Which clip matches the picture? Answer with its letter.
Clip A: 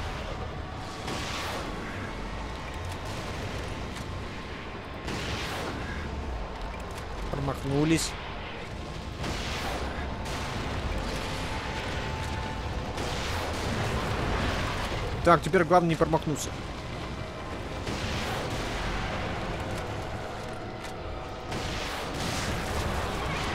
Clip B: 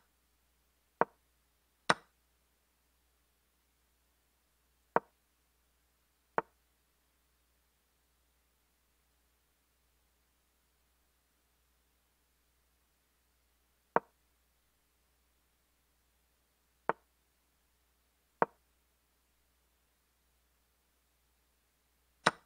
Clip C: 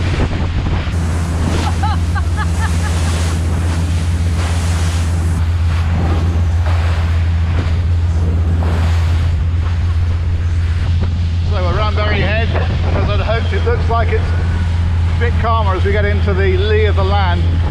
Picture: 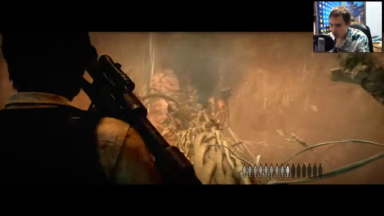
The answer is A